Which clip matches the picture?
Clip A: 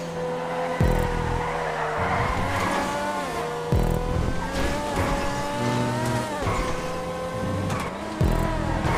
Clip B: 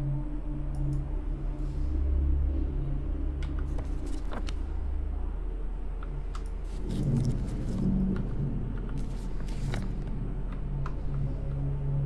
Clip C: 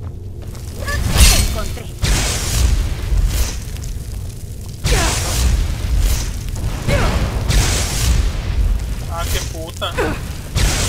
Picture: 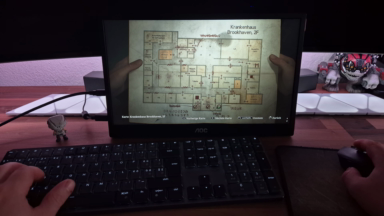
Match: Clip B